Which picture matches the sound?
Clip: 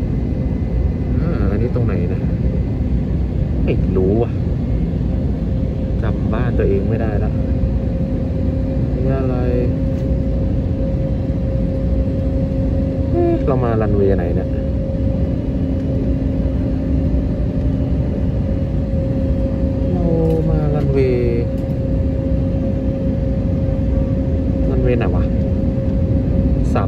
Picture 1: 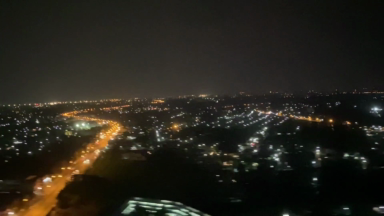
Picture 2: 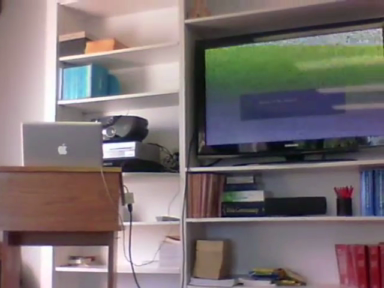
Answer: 1